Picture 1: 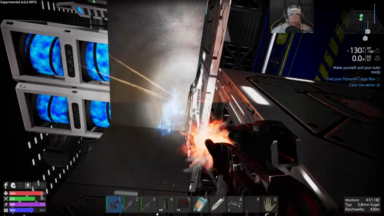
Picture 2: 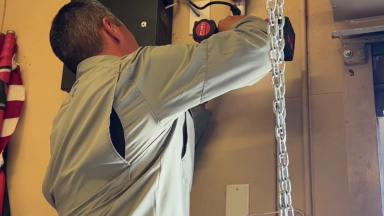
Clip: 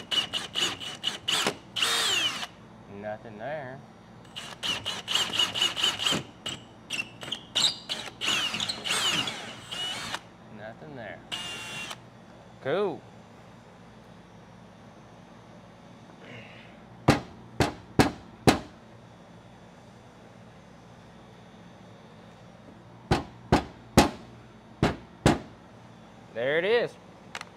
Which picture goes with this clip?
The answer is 2